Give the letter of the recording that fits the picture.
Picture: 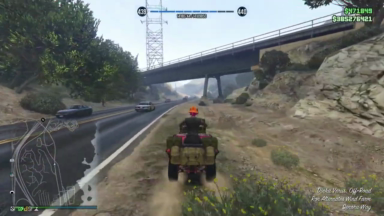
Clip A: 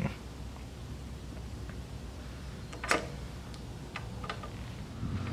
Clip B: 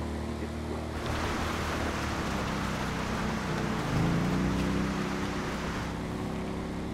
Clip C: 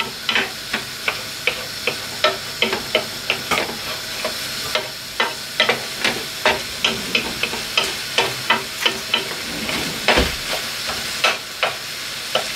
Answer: B